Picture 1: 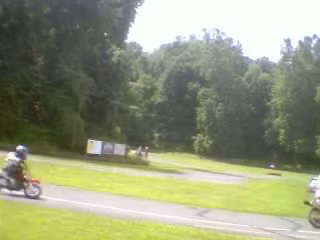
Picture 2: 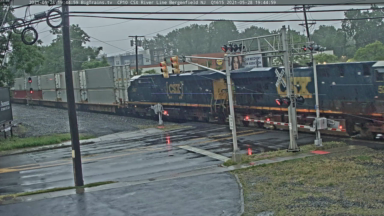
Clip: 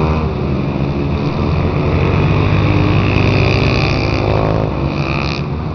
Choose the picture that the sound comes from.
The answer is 1